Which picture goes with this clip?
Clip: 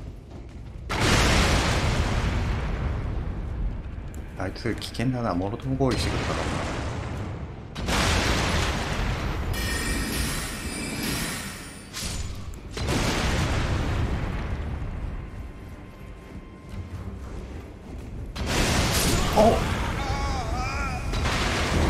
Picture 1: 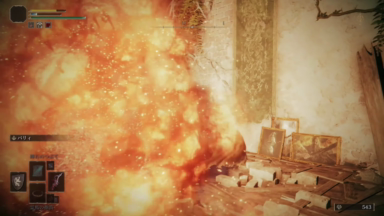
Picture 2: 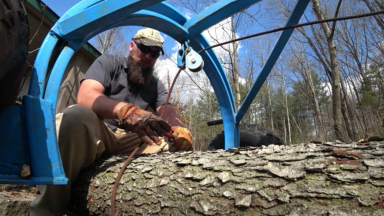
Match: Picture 1